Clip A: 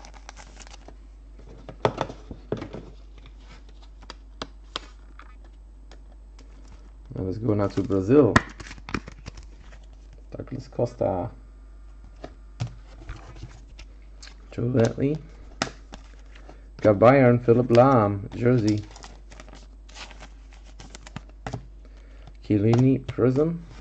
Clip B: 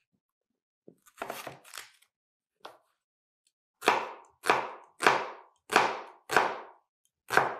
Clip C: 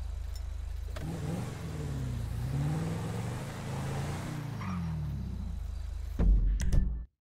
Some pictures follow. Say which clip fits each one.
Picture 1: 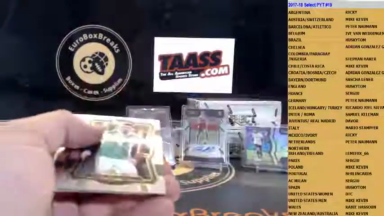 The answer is A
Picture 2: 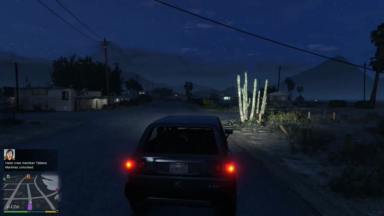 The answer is C